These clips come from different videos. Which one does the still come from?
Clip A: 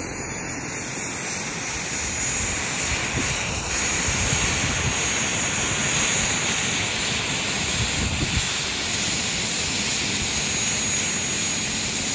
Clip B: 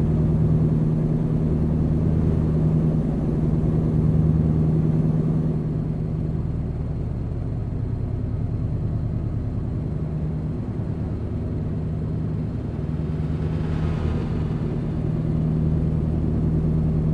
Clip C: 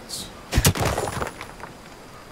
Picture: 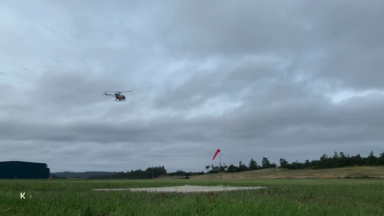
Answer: A